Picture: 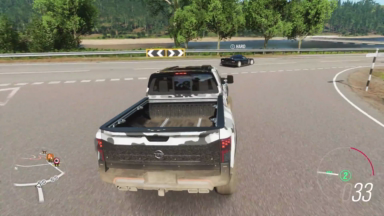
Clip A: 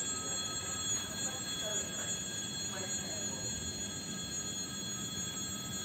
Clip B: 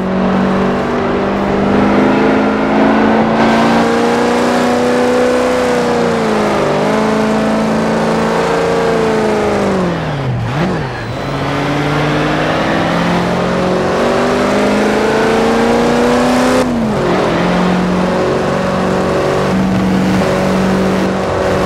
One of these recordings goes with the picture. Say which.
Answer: B